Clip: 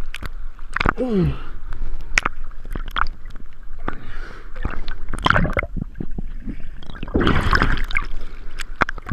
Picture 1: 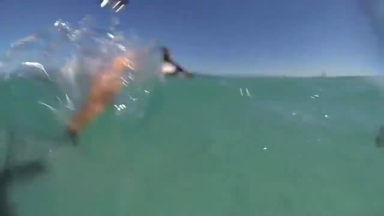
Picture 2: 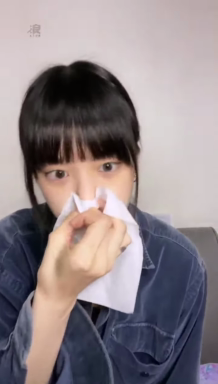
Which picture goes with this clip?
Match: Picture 1